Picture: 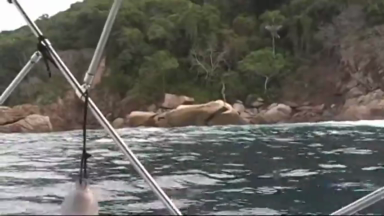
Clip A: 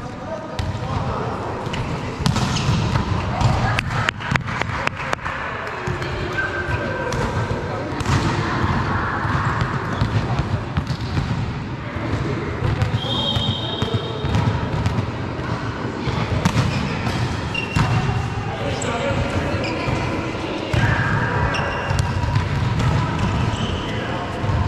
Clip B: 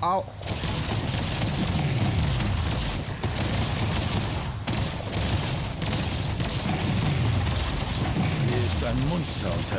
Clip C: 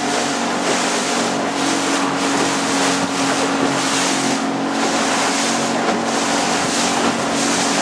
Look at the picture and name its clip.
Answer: C